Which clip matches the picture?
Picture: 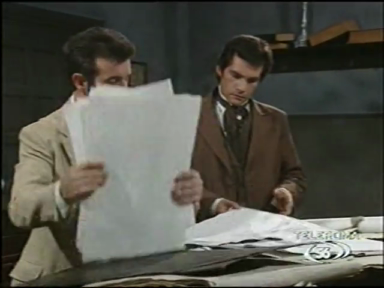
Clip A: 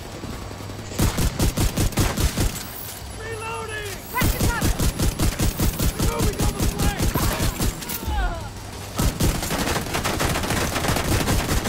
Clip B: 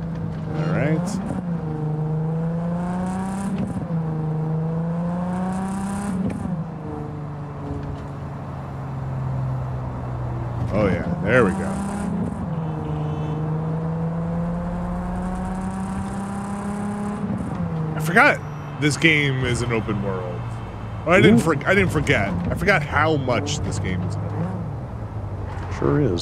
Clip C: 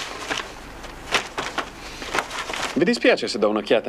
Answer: C